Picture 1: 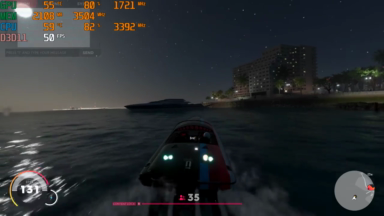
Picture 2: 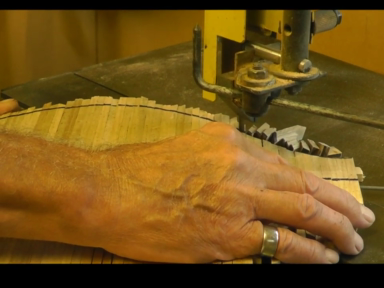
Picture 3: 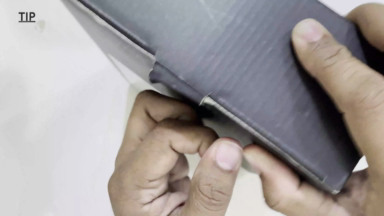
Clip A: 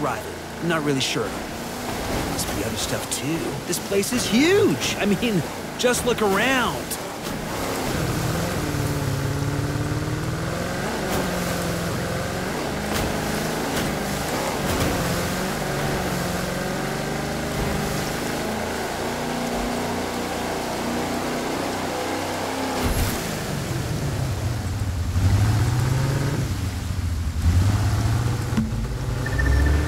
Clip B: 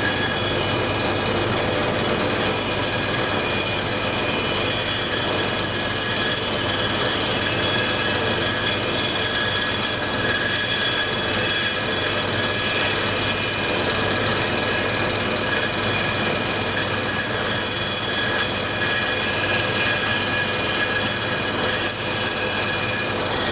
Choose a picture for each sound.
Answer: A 1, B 2